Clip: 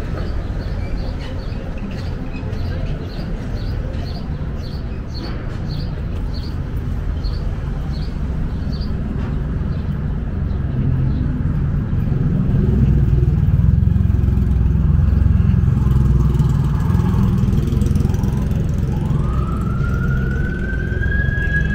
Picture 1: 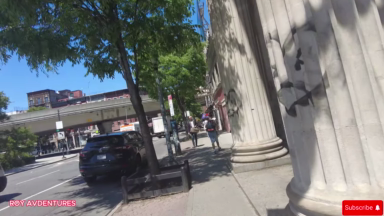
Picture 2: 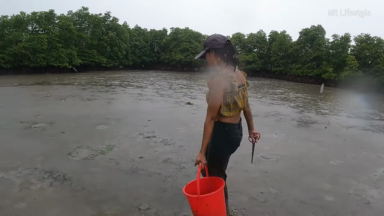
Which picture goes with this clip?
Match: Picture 1